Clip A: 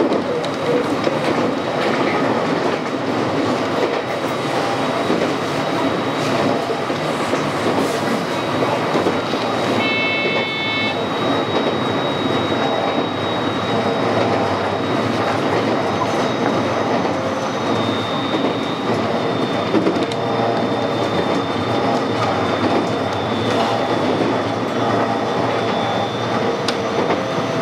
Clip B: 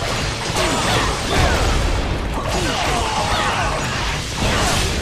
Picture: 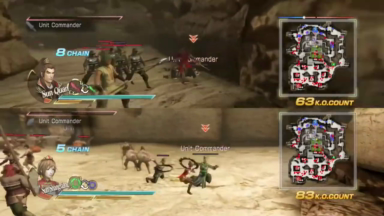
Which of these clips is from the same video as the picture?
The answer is B